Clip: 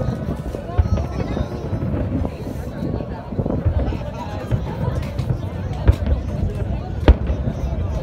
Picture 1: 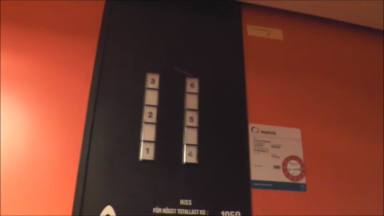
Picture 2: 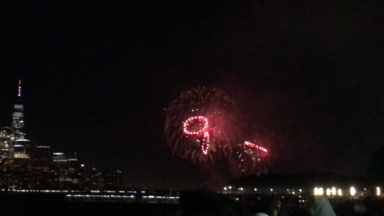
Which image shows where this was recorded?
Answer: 2